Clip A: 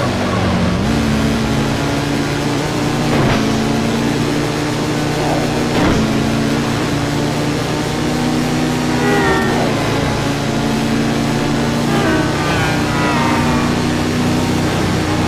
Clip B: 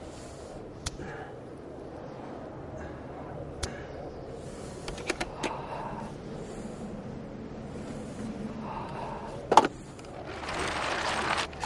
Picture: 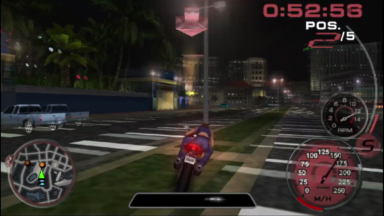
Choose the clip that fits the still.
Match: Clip A